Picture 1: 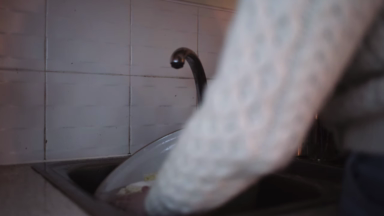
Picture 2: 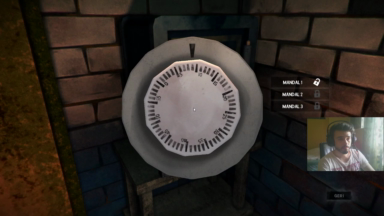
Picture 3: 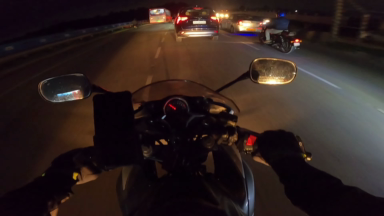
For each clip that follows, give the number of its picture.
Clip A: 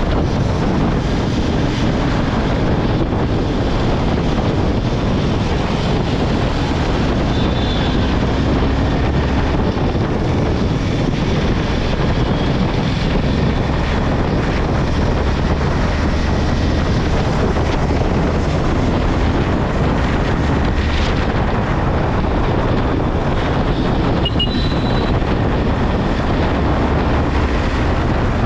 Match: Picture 3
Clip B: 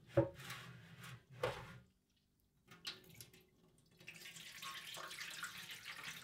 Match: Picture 1